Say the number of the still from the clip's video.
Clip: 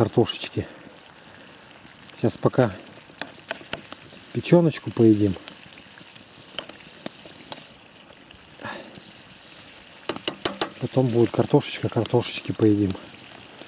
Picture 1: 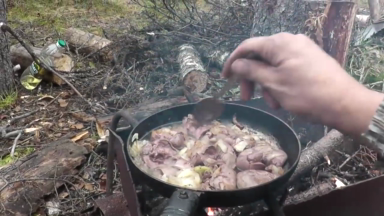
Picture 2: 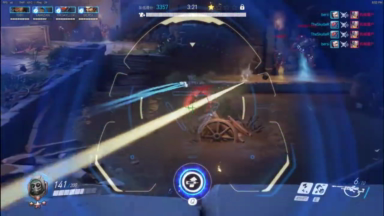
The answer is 1